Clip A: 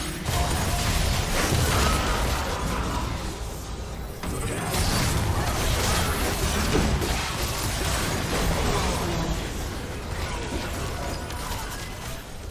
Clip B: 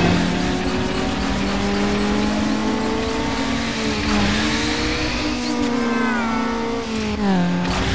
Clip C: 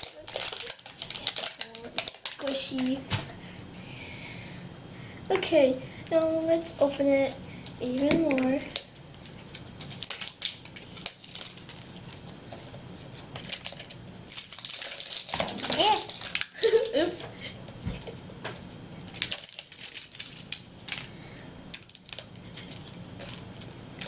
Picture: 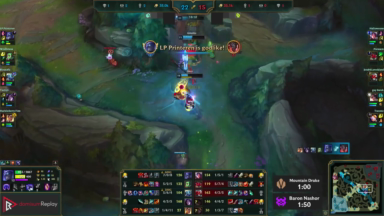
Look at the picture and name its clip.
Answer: A